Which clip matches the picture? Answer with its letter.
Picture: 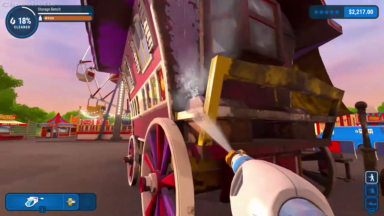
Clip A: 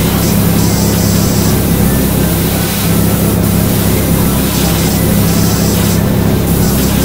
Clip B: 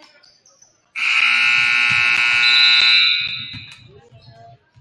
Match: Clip A